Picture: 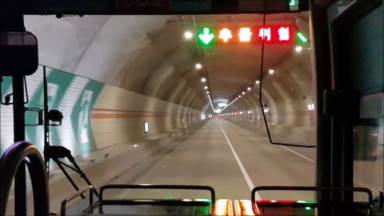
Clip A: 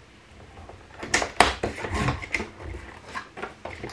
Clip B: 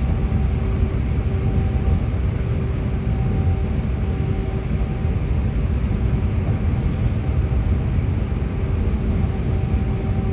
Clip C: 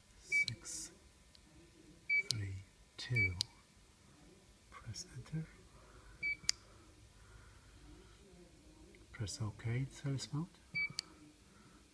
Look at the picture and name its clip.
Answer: B